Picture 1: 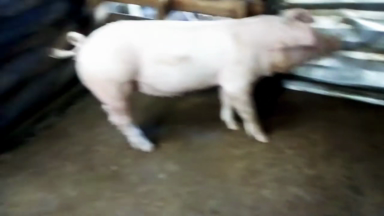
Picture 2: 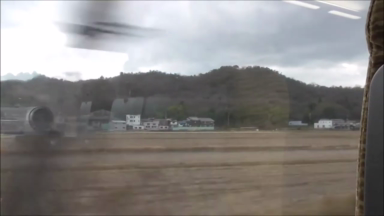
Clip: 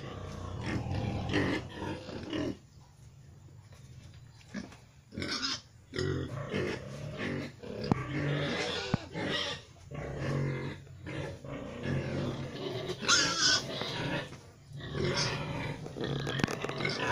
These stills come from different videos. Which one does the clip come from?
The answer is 1